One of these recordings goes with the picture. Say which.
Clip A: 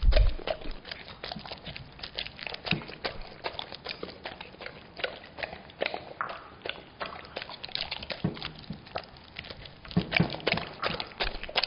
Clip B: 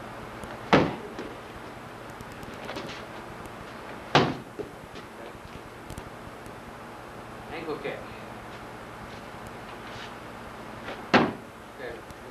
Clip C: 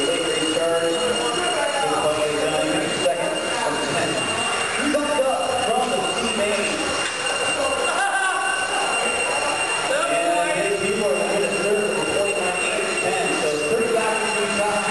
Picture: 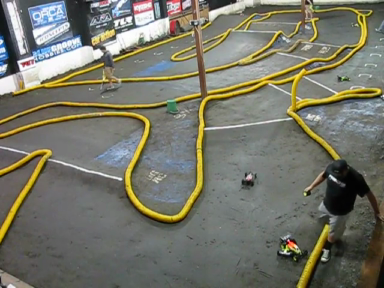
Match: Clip C